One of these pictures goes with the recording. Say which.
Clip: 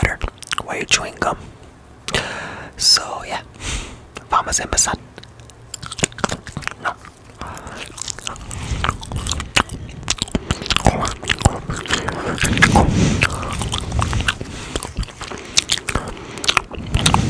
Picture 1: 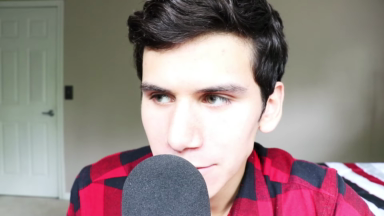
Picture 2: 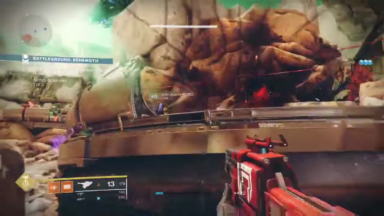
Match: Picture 1